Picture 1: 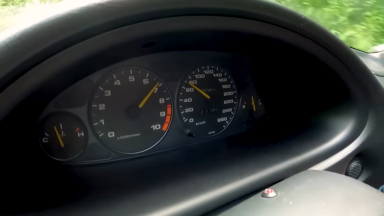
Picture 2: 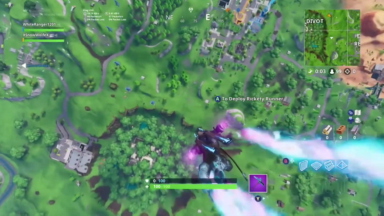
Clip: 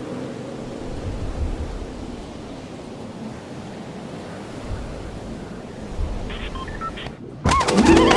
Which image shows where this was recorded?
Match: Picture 2